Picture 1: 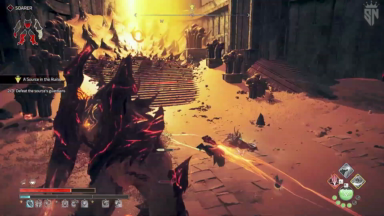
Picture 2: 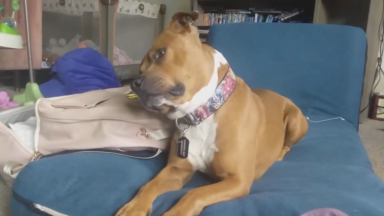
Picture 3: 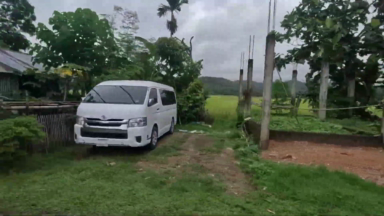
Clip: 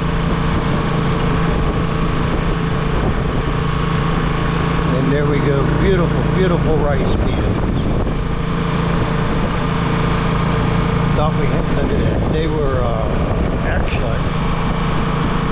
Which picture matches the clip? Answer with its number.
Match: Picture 3